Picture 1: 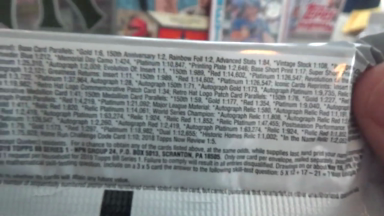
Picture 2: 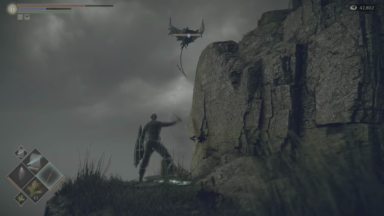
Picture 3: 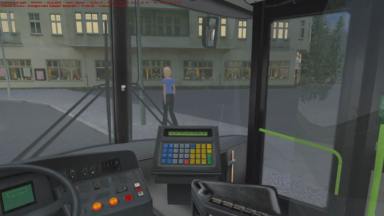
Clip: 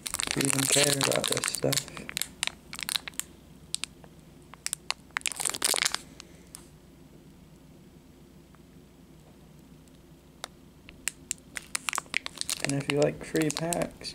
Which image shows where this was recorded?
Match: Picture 1